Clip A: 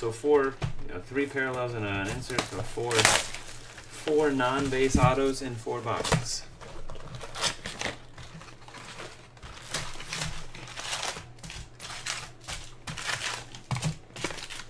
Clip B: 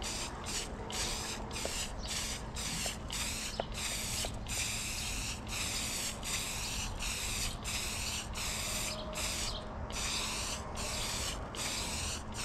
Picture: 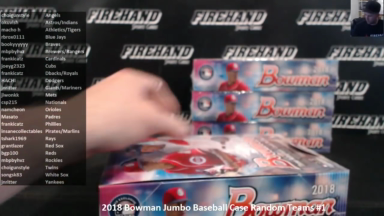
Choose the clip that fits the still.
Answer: A